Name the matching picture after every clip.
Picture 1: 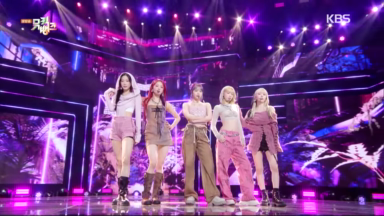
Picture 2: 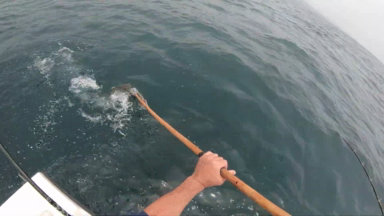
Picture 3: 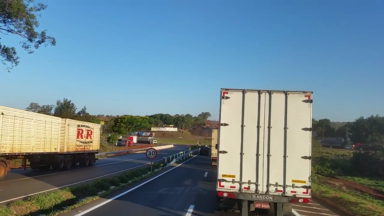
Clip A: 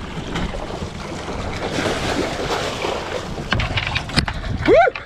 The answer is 2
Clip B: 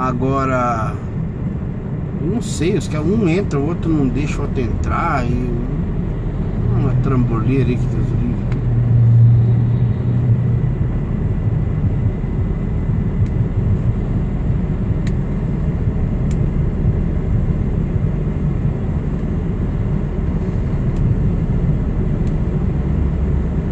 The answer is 3